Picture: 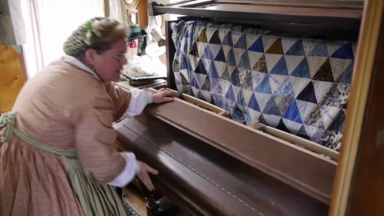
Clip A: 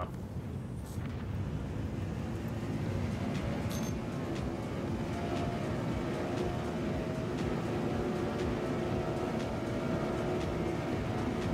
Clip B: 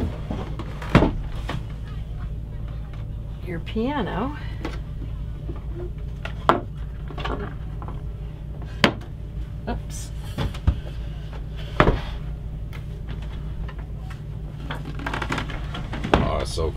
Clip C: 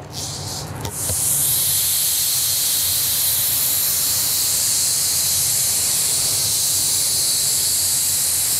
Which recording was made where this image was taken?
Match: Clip B